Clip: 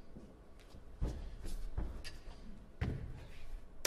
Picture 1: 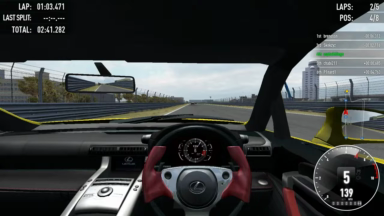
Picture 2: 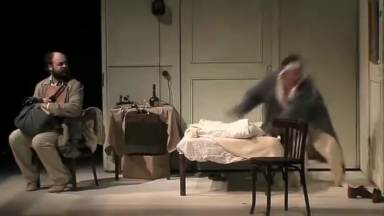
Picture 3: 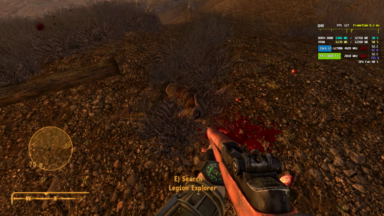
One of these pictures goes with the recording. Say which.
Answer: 2